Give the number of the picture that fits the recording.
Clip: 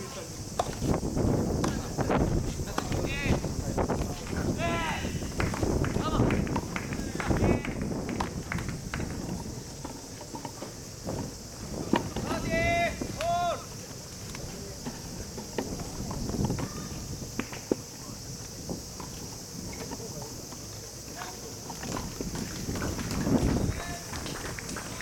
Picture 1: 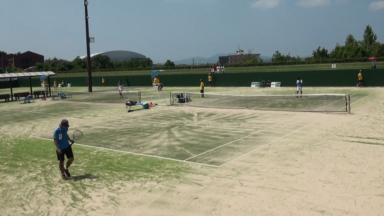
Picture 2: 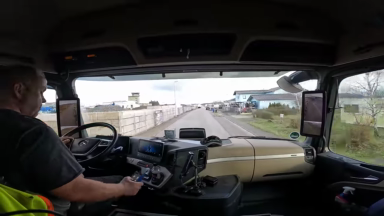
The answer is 1